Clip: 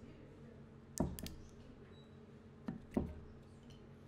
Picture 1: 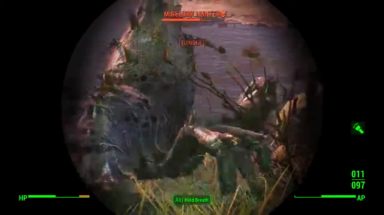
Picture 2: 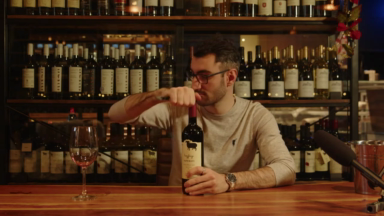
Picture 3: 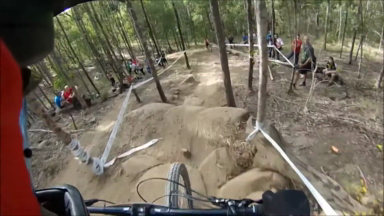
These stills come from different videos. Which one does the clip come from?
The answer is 2